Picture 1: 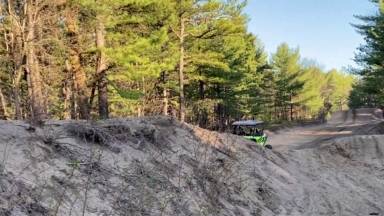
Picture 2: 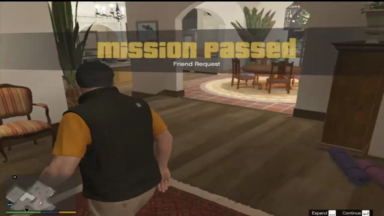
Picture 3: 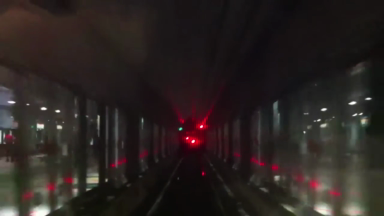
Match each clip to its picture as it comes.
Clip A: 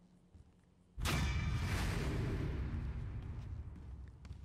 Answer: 2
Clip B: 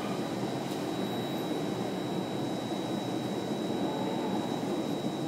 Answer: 3